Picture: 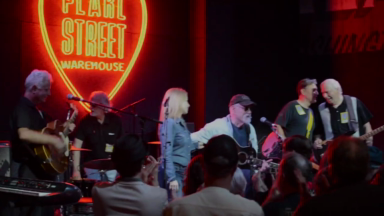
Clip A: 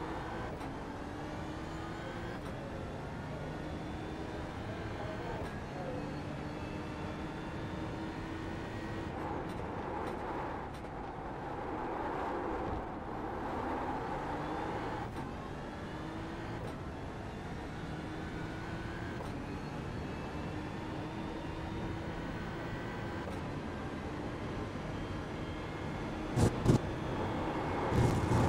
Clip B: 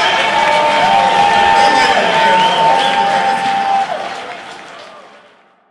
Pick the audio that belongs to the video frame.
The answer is B